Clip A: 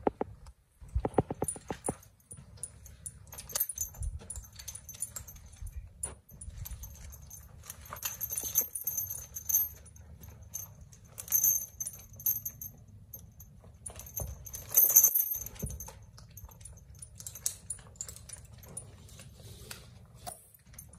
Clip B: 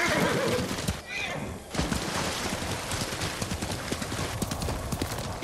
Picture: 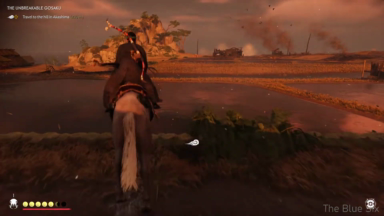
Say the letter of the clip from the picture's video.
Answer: B